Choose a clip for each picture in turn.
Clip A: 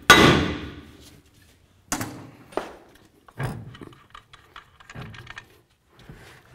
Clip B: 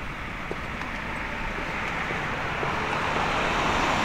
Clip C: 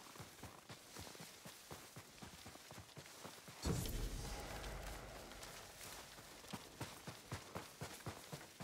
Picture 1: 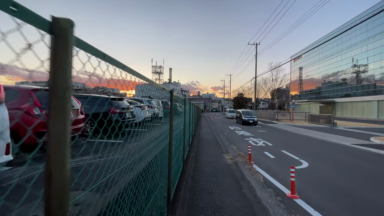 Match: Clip B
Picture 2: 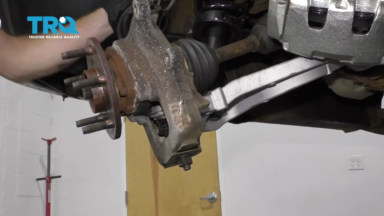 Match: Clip A